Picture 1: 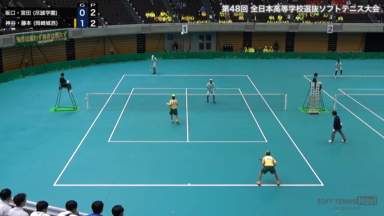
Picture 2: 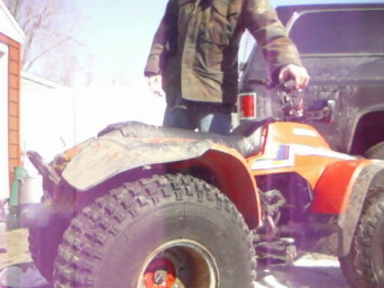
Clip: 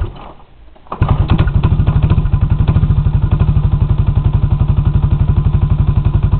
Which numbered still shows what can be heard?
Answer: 2